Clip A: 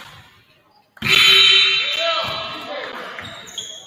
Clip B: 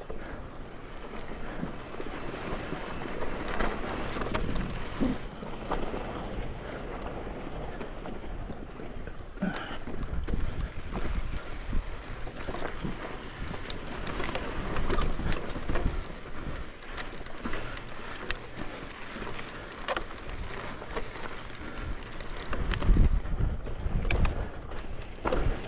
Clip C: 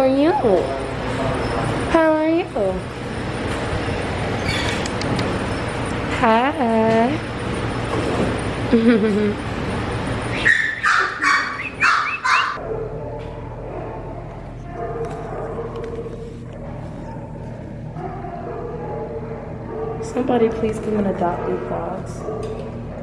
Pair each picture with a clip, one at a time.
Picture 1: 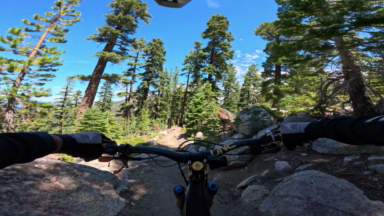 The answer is B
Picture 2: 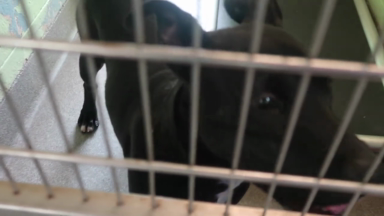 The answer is C